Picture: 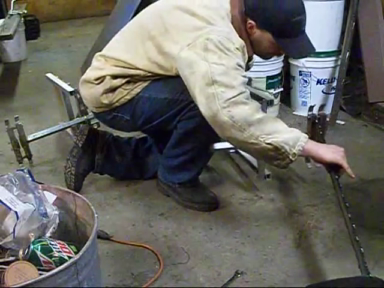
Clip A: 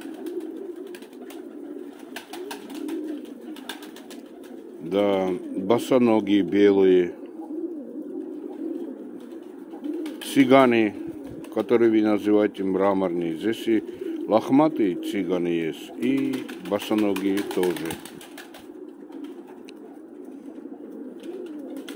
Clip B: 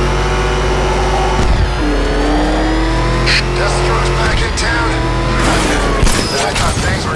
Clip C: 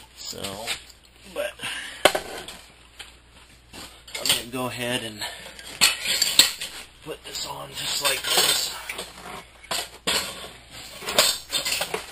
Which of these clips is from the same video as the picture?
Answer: C